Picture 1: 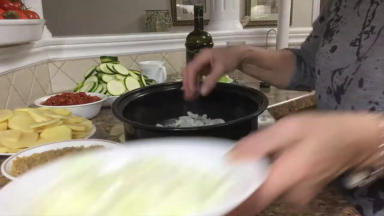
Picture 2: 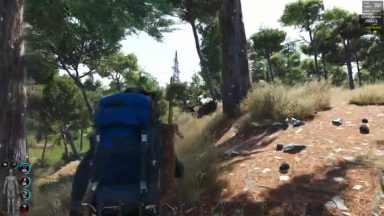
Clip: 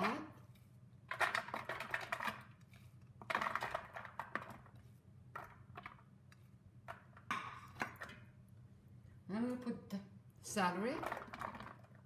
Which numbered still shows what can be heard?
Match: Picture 1